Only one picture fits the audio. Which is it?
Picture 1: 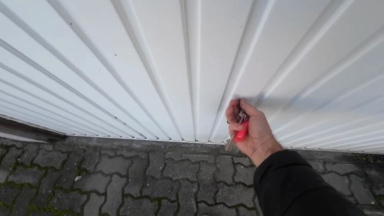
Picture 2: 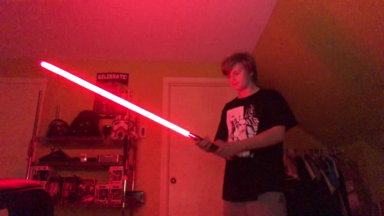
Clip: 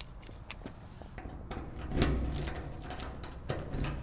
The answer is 1